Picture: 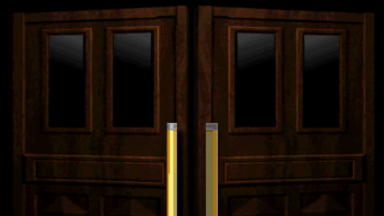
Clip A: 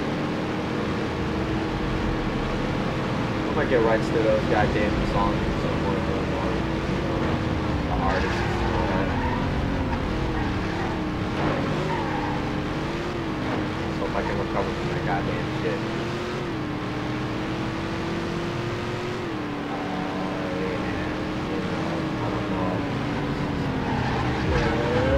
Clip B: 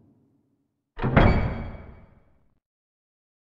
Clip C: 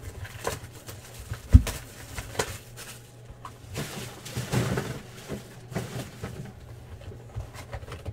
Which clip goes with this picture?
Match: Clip B